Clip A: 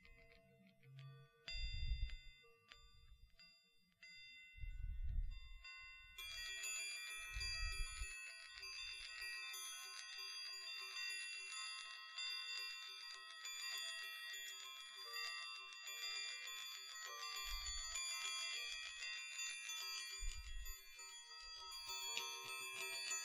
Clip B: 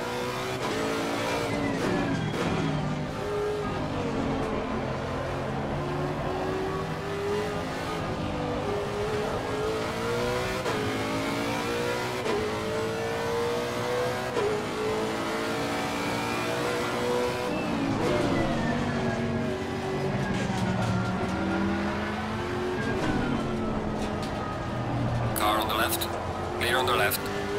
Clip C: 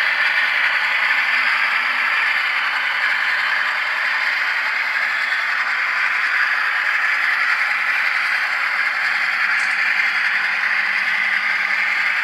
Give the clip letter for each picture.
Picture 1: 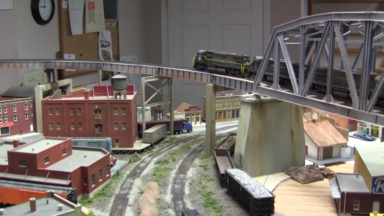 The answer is C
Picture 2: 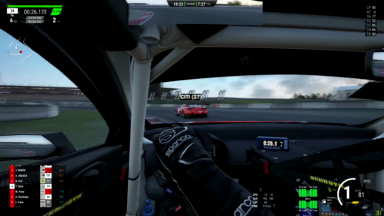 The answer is B